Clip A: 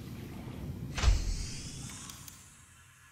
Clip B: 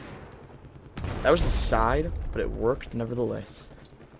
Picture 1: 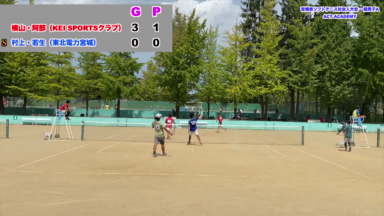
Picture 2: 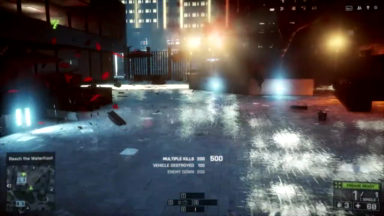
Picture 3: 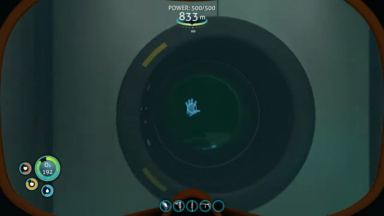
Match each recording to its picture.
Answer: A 3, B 2